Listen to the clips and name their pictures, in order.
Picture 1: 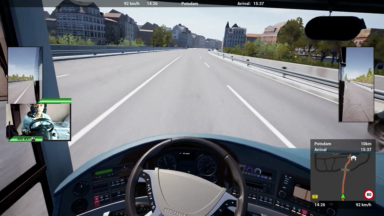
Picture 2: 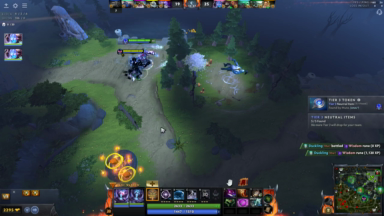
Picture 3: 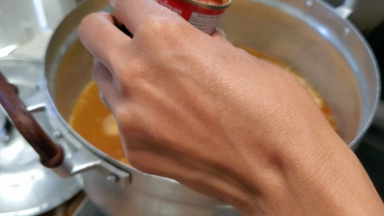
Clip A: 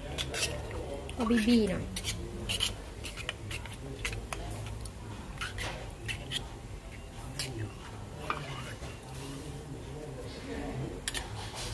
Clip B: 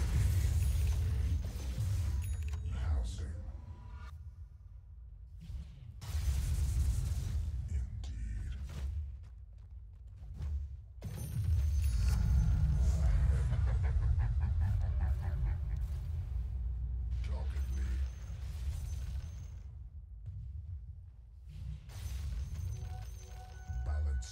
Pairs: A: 3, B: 2